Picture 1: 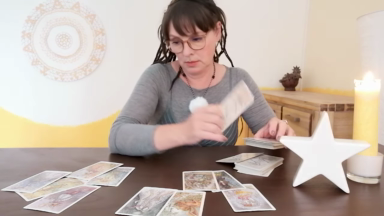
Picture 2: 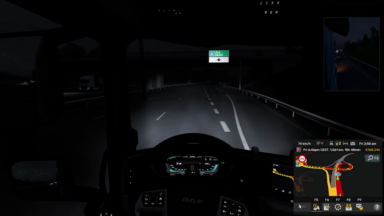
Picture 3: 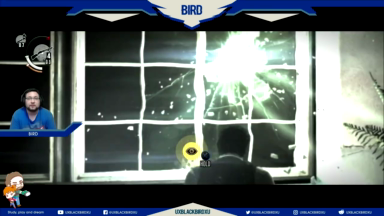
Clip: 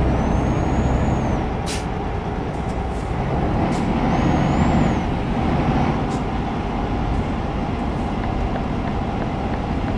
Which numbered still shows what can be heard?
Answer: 2